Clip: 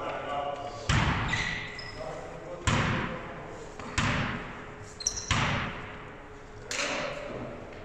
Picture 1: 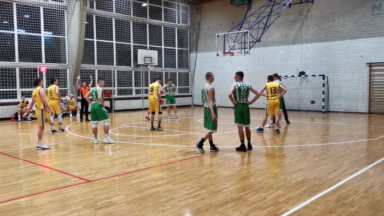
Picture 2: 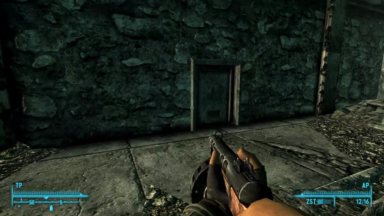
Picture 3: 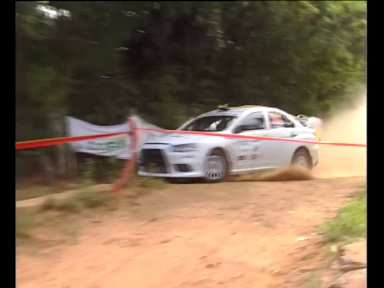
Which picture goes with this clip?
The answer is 1